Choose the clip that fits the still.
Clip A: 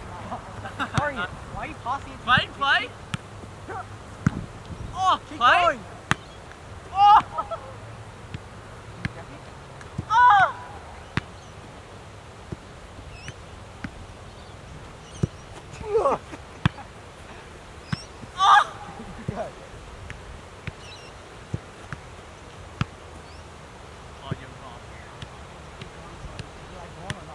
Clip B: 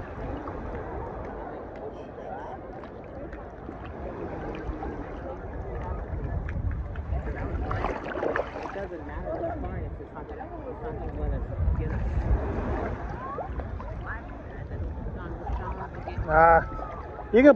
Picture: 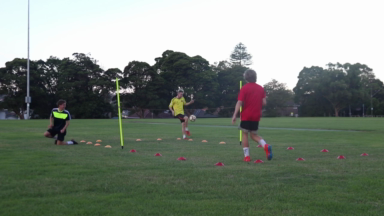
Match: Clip A